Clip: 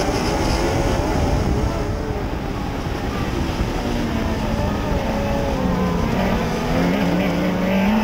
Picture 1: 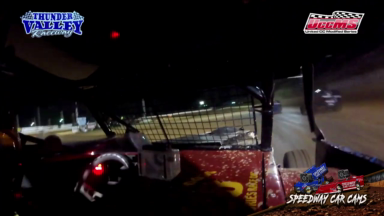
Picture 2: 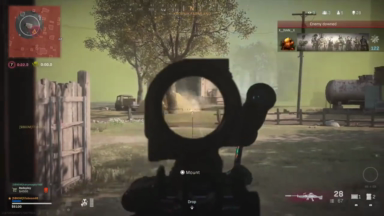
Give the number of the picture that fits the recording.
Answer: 1